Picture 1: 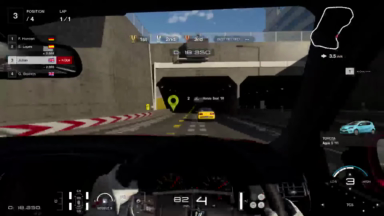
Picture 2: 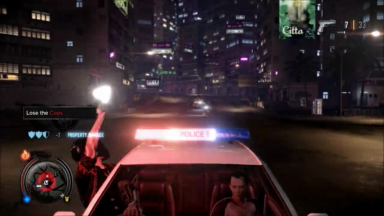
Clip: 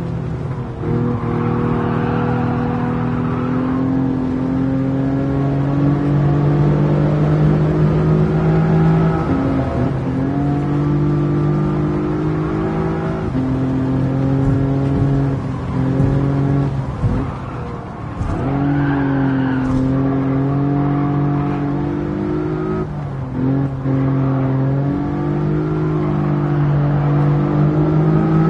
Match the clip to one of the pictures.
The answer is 1